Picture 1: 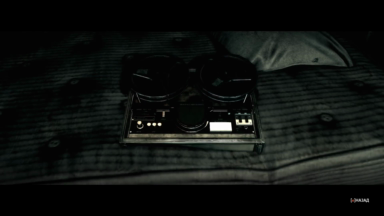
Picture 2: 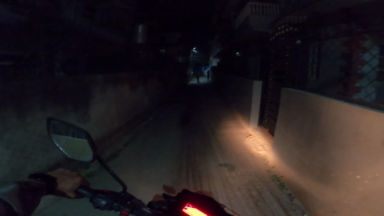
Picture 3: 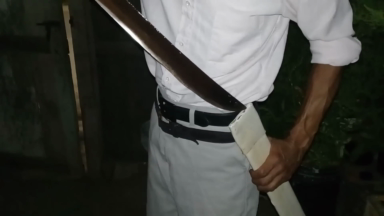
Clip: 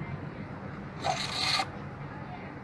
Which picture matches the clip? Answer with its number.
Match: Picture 3